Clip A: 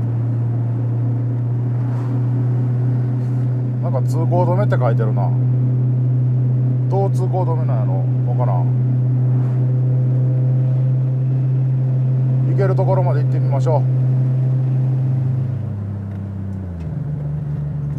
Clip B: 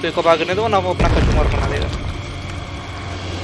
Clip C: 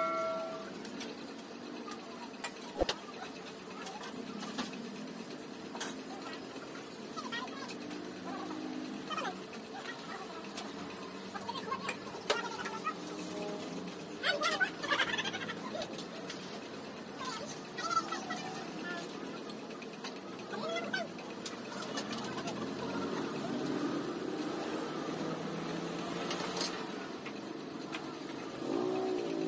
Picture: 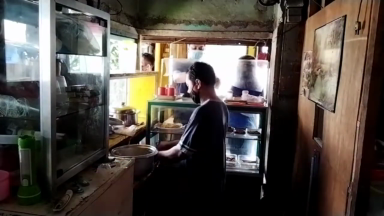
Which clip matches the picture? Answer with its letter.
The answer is C